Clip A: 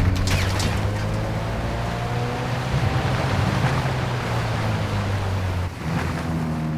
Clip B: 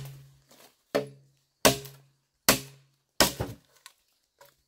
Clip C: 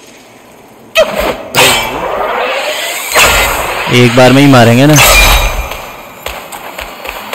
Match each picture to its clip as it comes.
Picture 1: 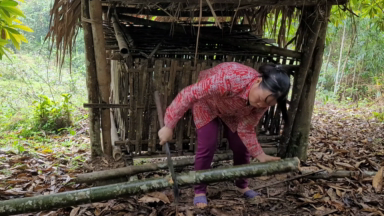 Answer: B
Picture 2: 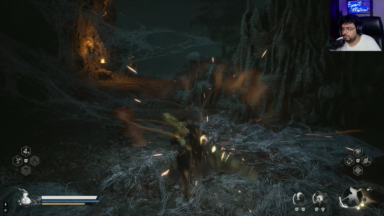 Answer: C